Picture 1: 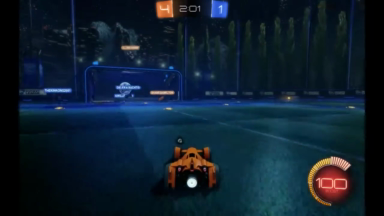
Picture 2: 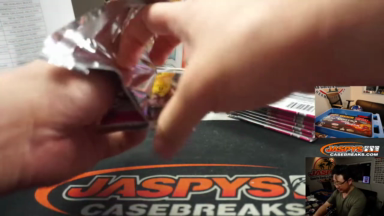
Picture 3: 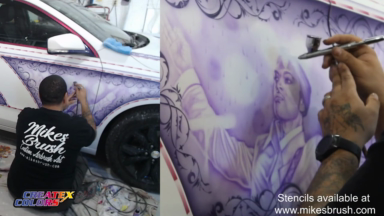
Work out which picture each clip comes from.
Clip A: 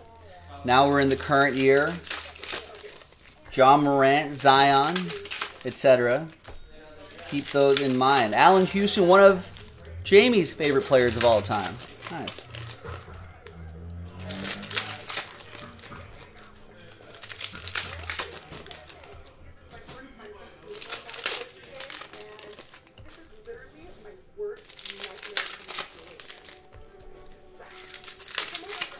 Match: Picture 2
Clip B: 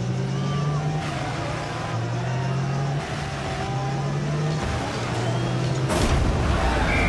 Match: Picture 1